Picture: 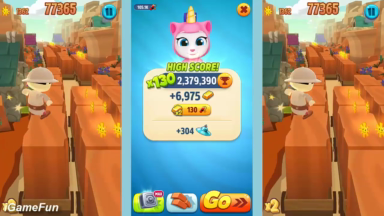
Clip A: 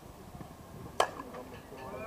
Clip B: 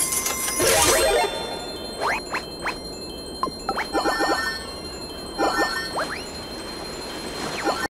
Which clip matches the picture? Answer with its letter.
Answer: B